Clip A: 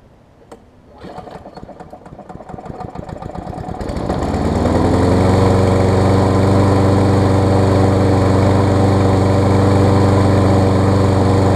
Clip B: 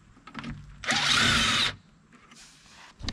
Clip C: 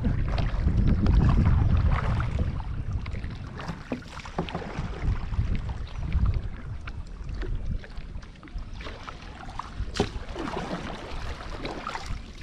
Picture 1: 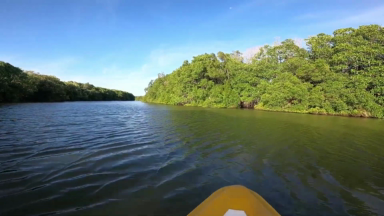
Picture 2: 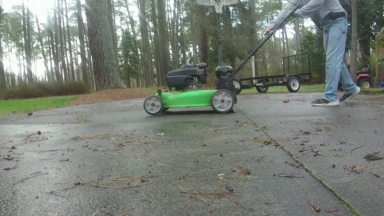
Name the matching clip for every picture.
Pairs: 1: C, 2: A